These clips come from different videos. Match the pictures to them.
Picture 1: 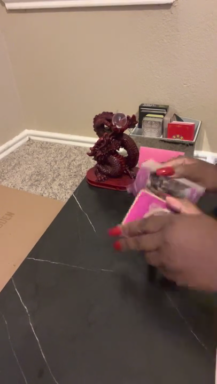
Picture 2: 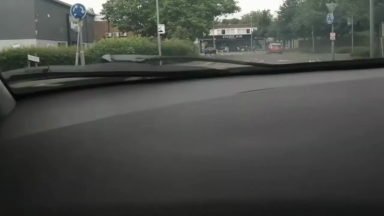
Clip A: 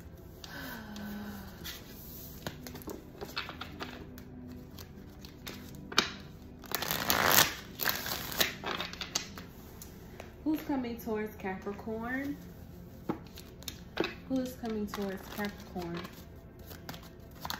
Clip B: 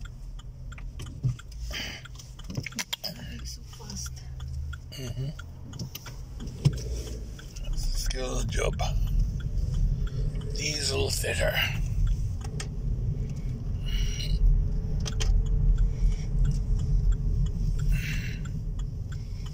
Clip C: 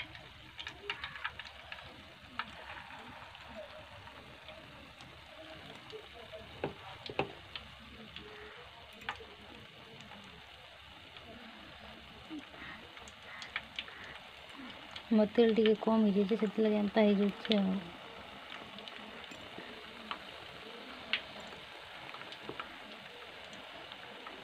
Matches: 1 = A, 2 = B